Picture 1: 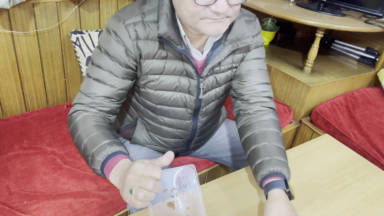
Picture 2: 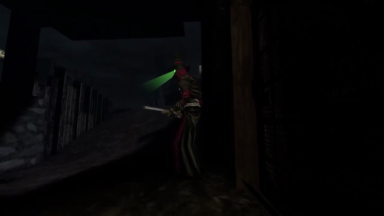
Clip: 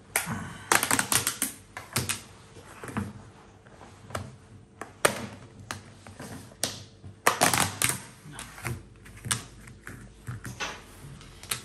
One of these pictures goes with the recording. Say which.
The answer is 1